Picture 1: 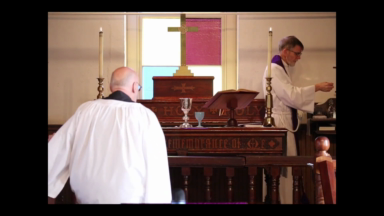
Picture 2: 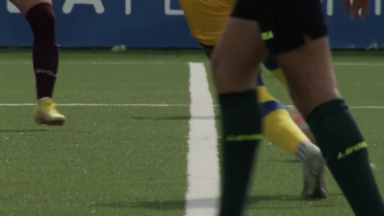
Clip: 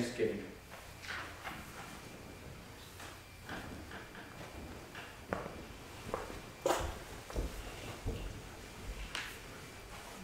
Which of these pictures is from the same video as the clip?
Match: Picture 1